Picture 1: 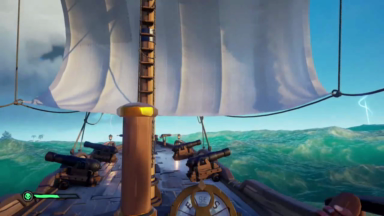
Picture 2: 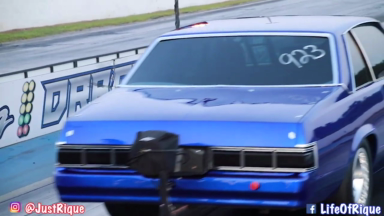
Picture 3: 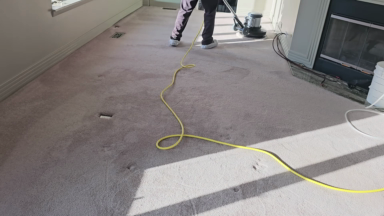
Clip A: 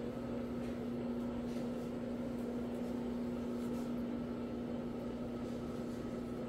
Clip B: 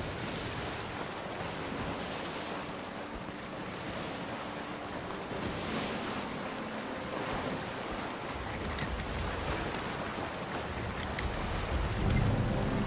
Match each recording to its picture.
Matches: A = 3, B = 1